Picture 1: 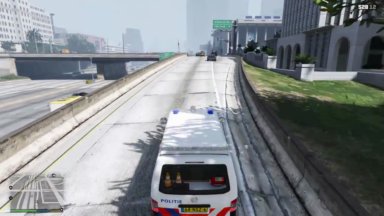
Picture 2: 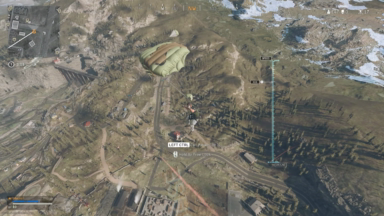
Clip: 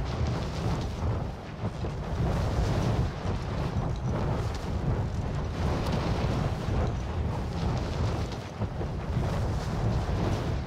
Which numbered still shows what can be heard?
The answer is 2